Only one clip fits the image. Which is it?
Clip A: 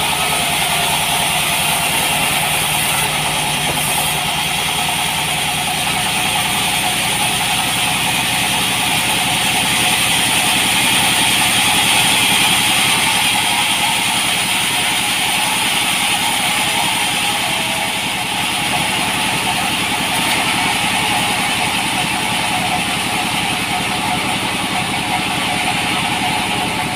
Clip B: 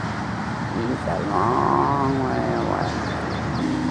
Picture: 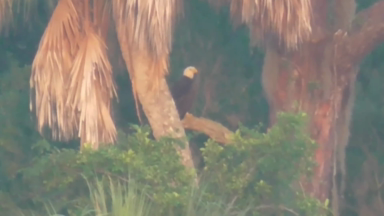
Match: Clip B